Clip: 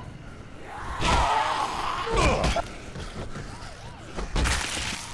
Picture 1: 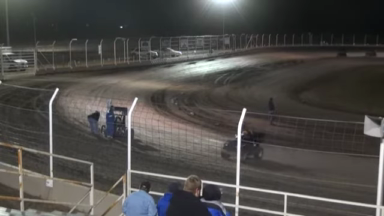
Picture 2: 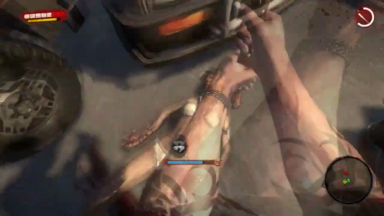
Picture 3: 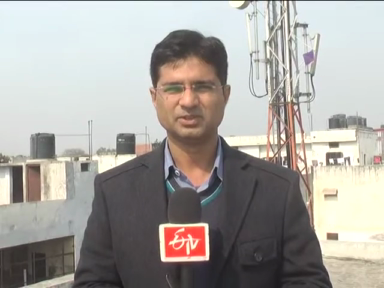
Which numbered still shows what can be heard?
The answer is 2